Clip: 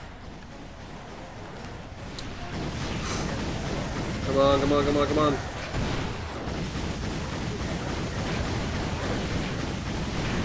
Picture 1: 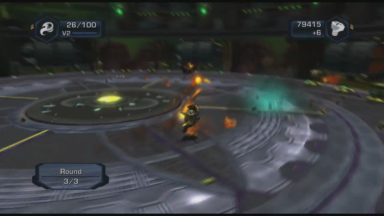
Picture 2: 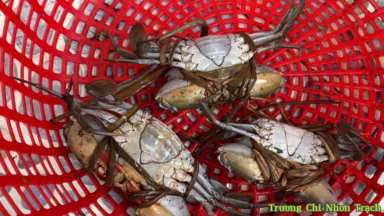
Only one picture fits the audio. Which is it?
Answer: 1